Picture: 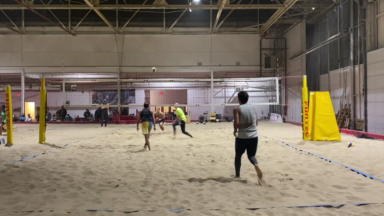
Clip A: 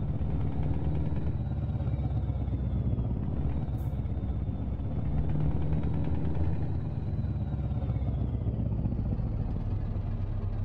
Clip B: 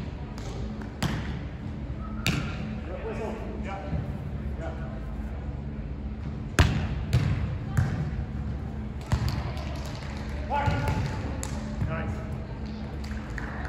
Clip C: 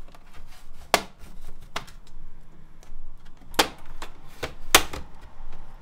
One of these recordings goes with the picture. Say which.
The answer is B